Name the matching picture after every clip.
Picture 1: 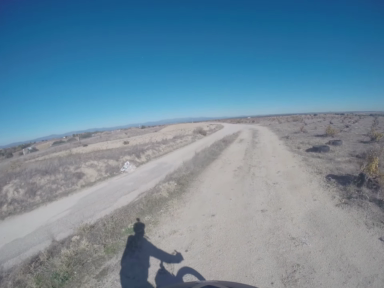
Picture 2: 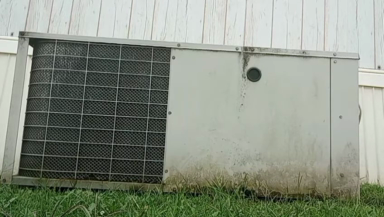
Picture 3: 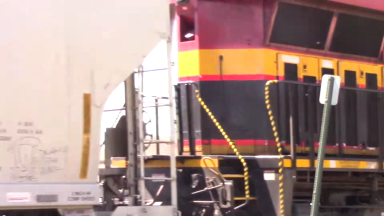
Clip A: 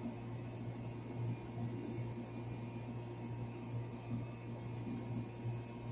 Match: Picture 2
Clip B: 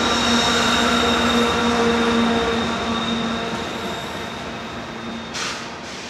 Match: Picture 3